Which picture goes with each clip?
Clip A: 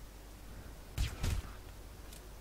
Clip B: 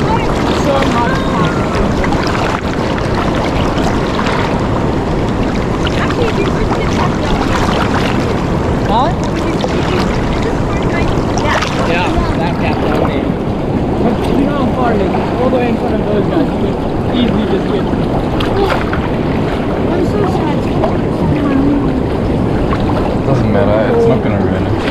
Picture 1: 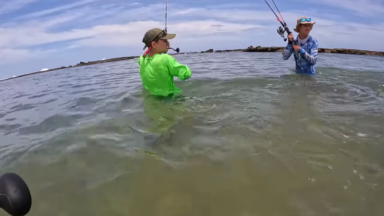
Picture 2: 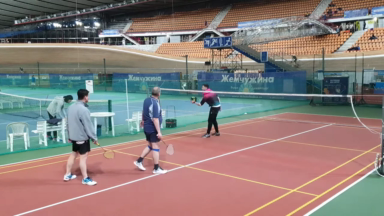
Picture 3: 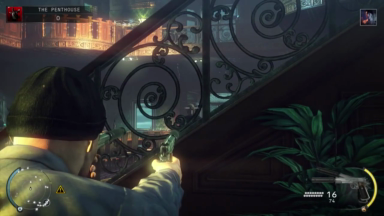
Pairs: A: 3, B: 1